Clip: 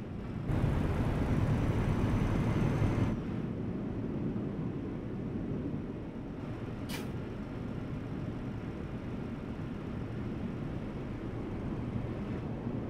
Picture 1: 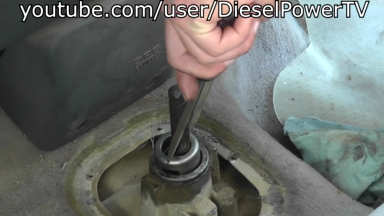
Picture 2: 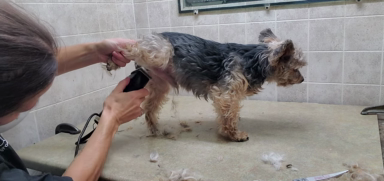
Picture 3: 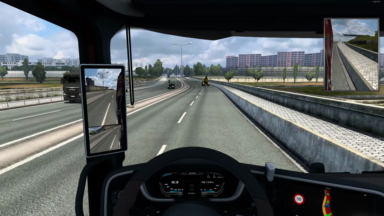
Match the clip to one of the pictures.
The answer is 3